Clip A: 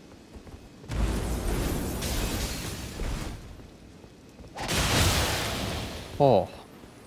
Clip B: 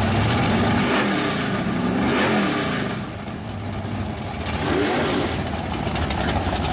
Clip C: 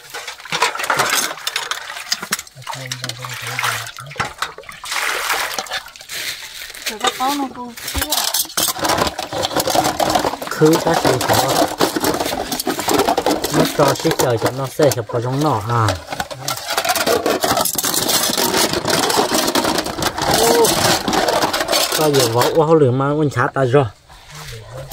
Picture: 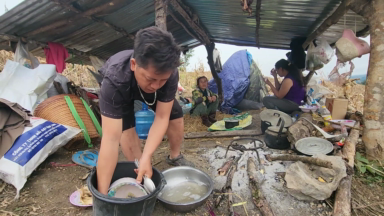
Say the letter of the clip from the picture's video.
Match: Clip C